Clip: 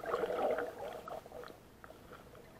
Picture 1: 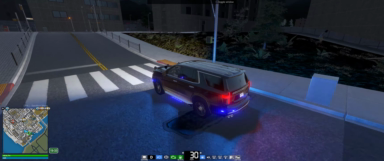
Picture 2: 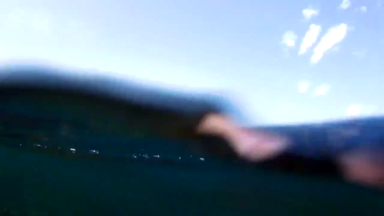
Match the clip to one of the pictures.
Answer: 2